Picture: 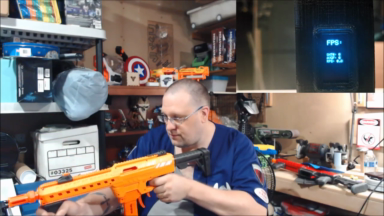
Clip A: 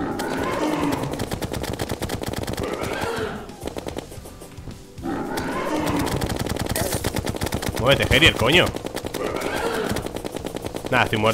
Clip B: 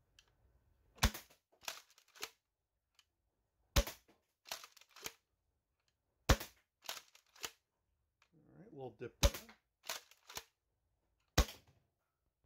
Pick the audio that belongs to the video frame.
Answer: B